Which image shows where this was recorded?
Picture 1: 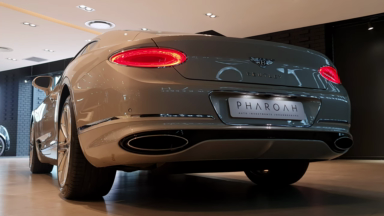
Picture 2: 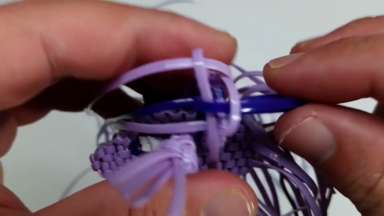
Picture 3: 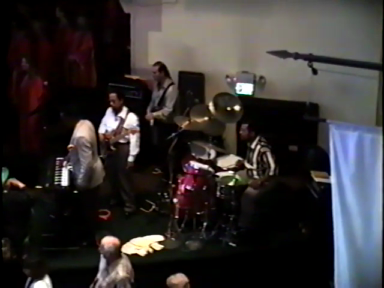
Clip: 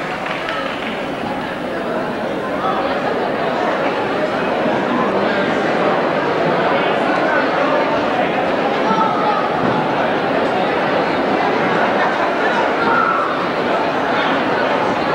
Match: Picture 3